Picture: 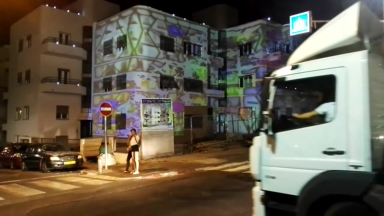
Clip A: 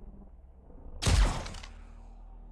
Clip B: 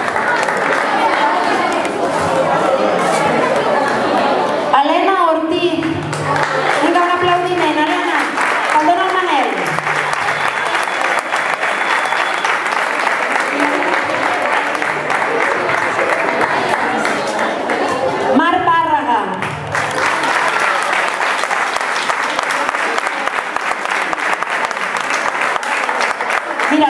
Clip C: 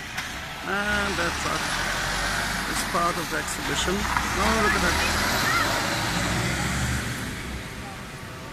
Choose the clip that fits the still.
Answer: C